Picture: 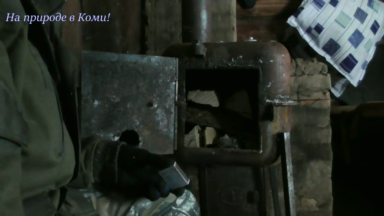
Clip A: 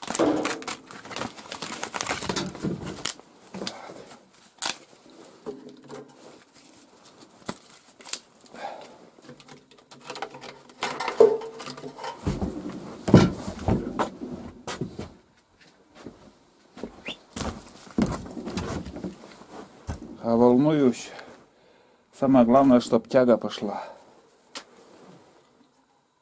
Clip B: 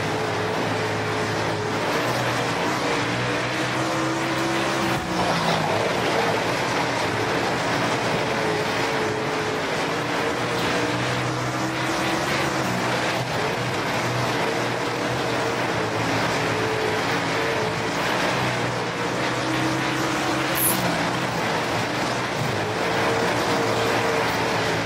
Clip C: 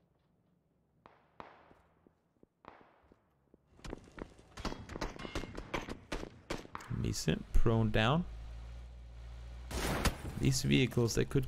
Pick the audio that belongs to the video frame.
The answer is A